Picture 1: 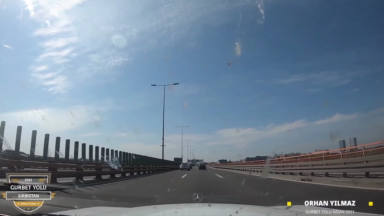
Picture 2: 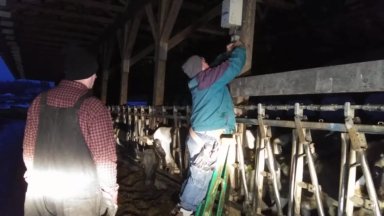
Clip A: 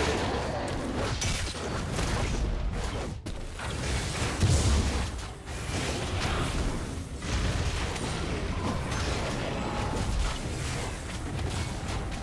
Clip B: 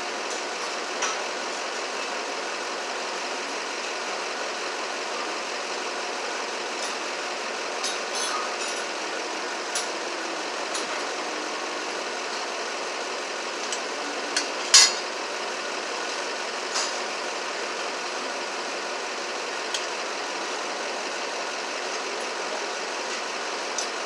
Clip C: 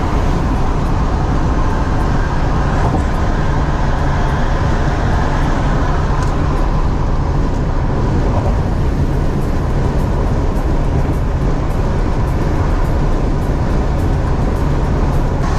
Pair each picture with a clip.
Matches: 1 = C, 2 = B